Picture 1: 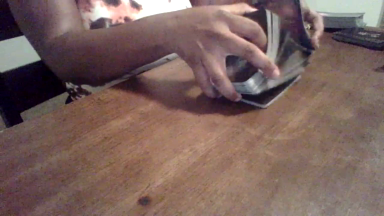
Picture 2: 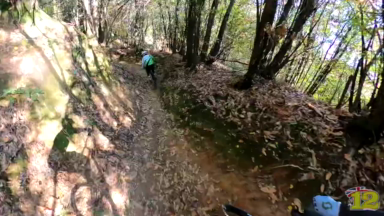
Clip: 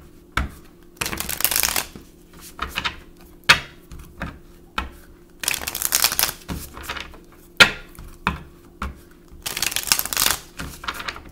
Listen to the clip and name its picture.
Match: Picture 1